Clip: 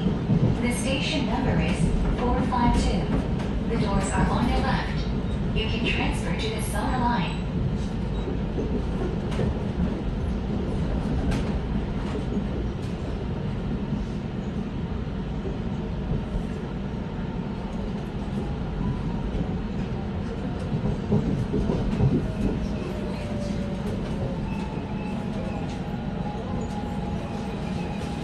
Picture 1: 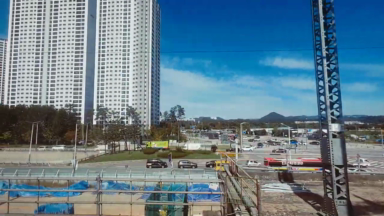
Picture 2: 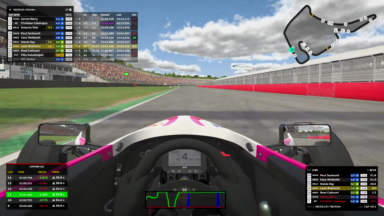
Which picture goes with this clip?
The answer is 1